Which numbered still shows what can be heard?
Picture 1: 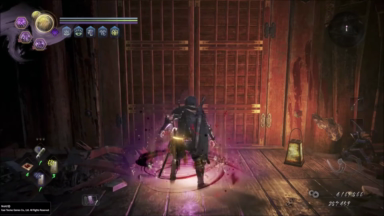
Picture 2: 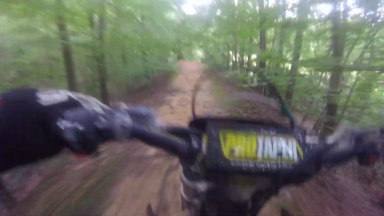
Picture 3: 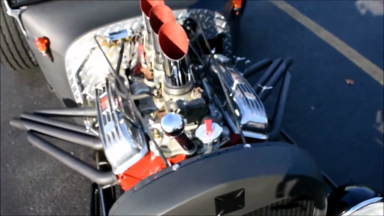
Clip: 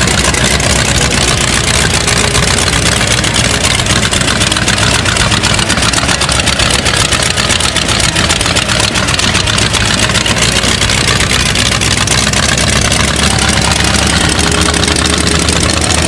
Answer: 3